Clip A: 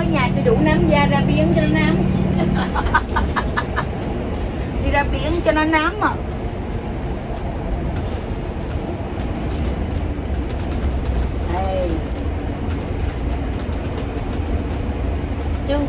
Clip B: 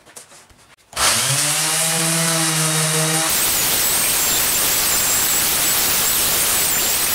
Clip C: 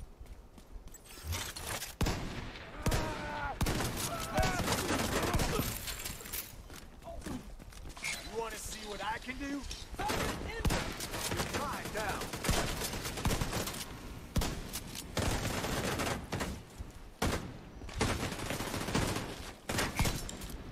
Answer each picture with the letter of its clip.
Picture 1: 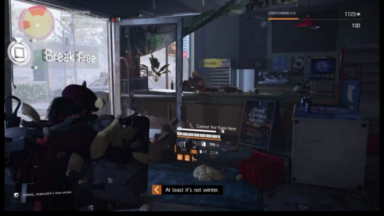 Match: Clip C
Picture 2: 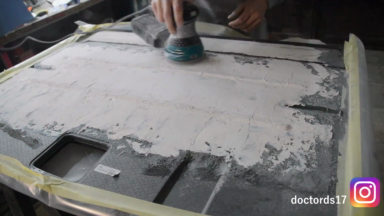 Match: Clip B